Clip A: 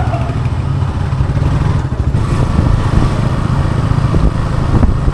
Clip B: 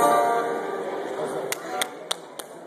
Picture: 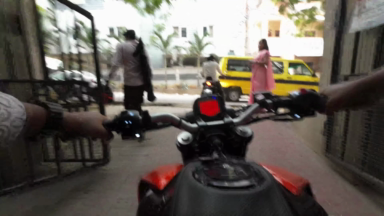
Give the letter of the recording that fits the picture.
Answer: A